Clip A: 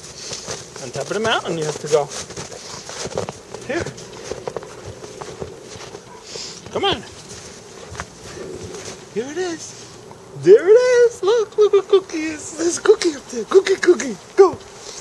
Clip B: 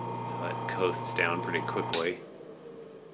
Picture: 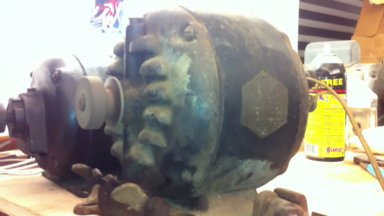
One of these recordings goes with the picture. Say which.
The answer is B